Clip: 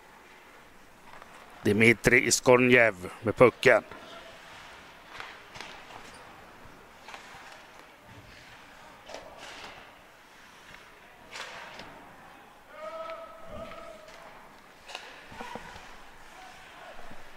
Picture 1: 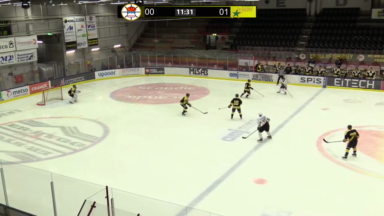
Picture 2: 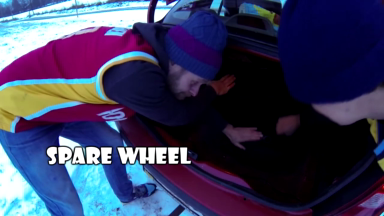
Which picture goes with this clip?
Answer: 1